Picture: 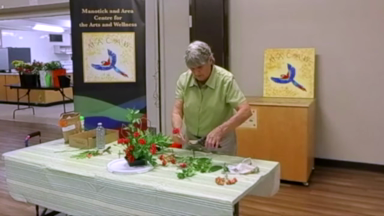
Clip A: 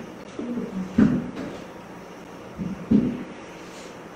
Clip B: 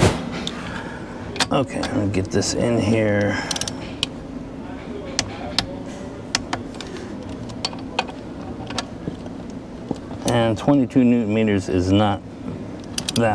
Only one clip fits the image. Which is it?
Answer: A